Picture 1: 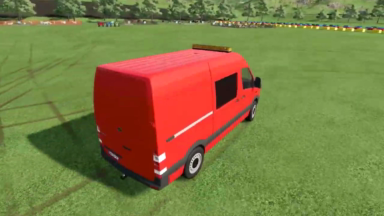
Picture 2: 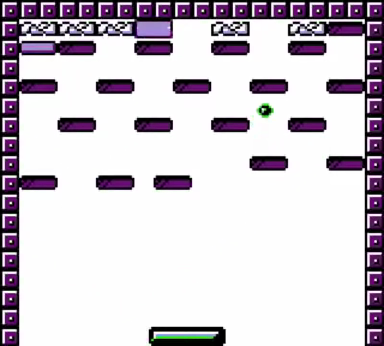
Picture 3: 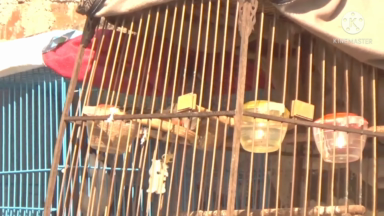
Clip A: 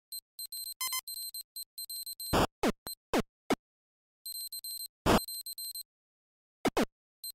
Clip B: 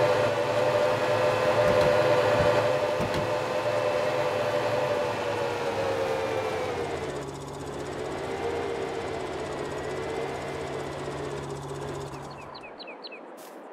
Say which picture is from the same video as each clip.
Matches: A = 2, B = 1